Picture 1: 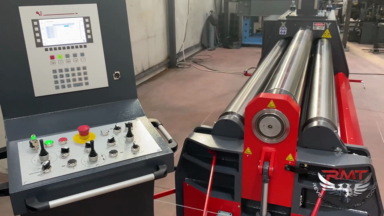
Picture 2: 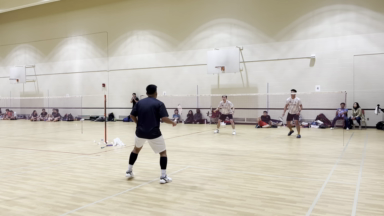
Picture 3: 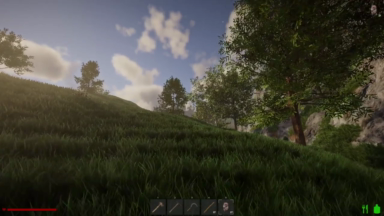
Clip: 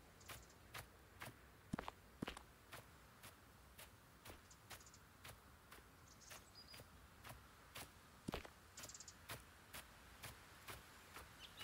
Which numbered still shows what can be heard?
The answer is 3